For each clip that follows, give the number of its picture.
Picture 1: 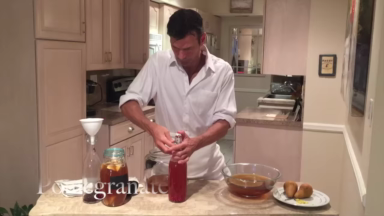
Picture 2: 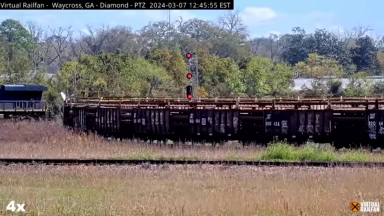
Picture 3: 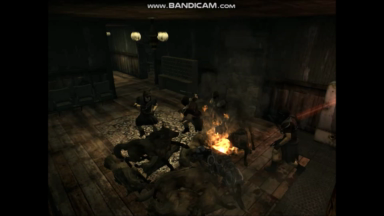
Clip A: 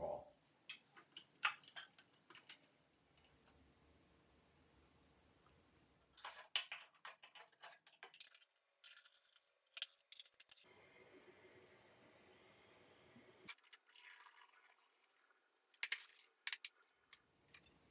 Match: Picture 1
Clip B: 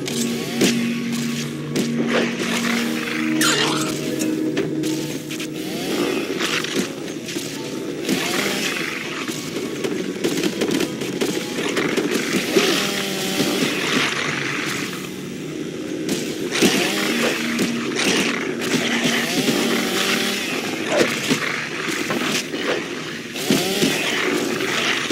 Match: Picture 3